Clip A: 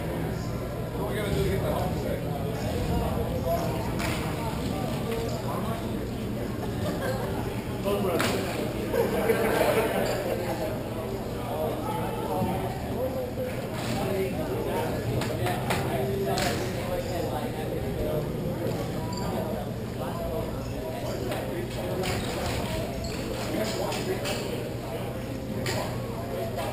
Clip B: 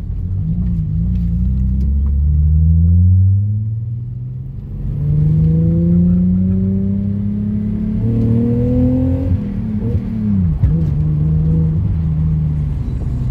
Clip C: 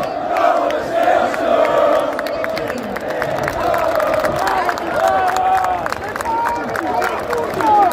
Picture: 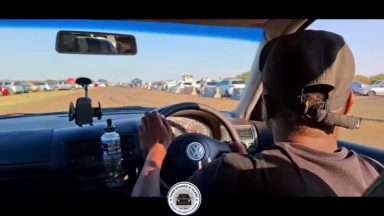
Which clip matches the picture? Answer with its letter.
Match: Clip B